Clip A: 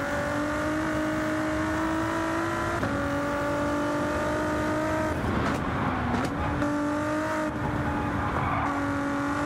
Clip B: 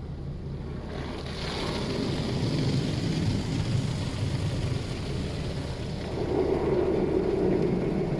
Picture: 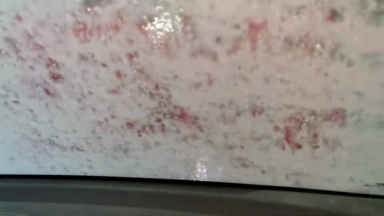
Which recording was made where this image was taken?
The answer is B